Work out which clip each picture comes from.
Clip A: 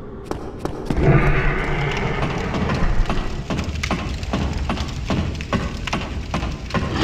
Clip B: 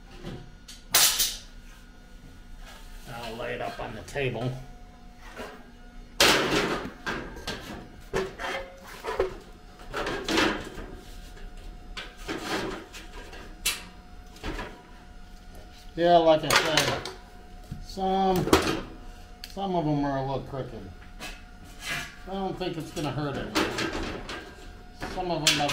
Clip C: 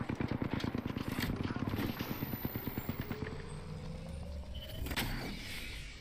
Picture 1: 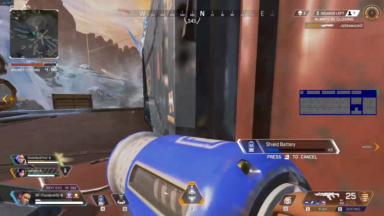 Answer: C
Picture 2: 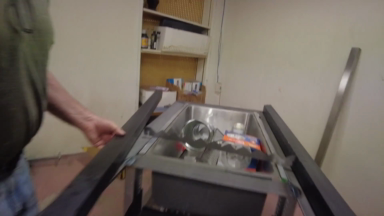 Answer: B